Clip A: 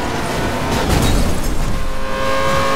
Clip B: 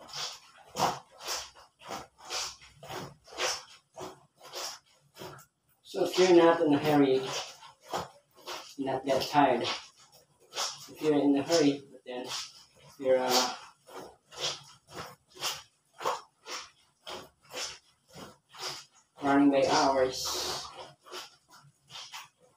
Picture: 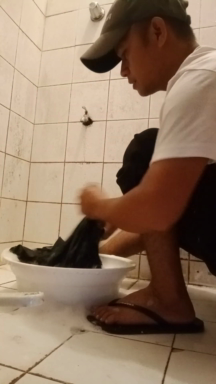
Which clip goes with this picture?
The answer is B